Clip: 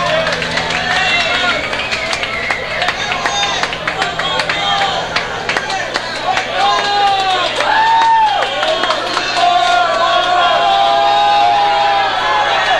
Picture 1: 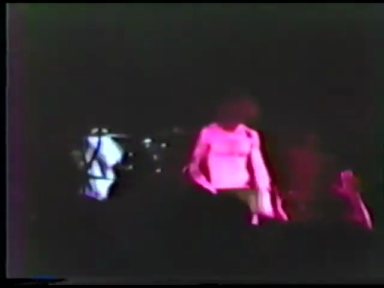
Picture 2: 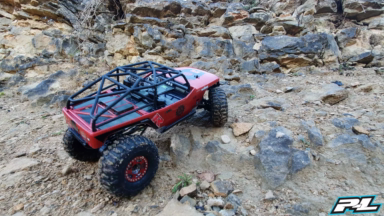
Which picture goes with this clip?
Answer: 1